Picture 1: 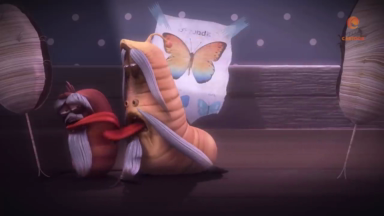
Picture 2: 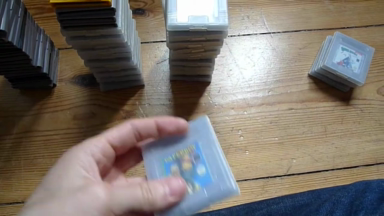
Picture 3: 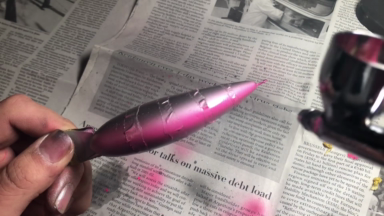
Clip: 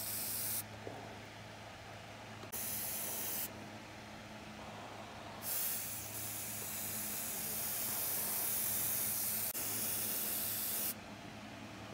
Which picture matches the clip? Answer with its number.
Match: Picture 3